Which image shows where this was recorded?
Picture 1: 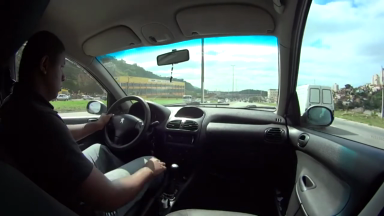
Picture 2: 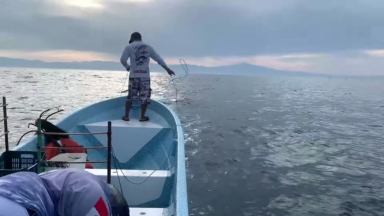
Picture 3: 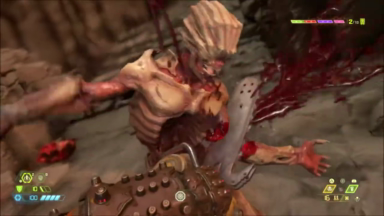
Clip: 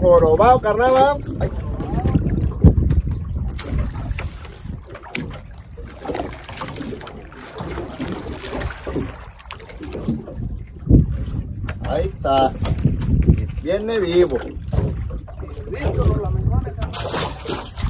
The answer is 2